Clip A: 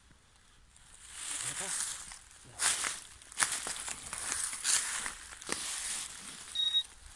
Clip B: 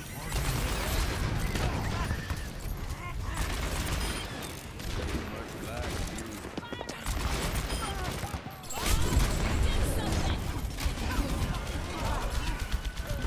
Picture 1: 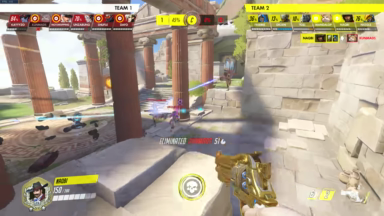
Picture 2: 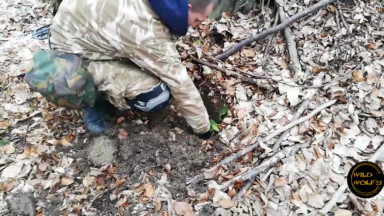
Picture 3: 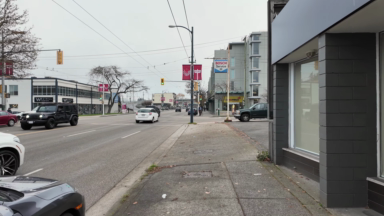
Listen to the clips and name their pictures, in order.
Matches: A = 2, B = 1